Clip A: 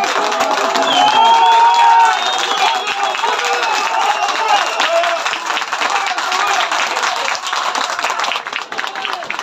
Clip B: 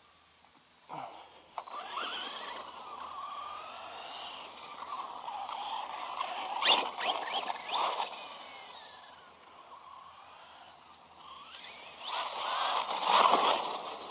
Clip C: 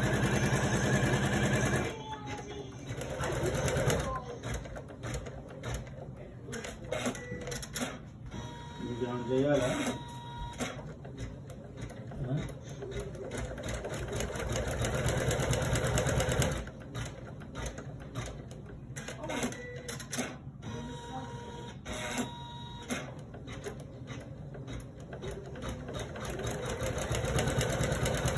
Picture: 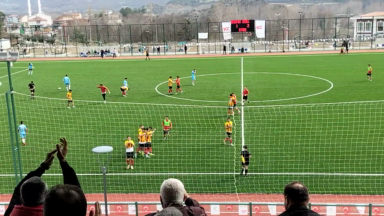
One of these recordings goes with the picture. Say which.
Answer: A